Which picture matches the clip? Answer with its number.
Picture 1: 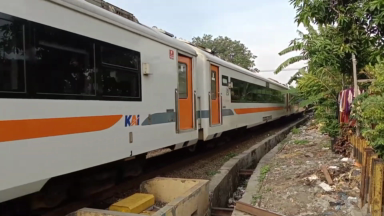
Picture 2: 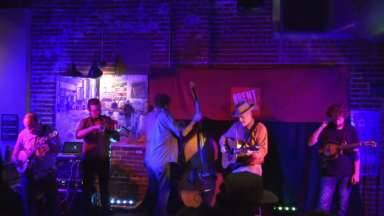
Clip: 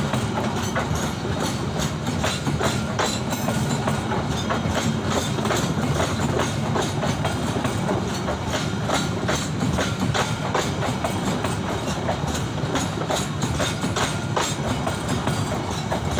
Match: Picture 1